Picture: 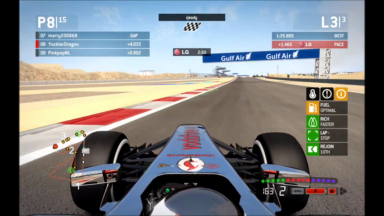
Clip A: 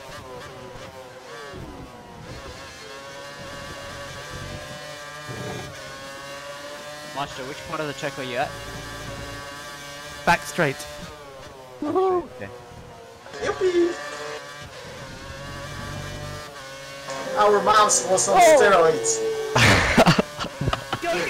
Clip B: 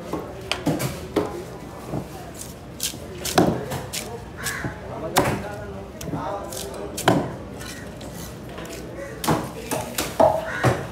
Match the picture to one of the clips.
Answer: A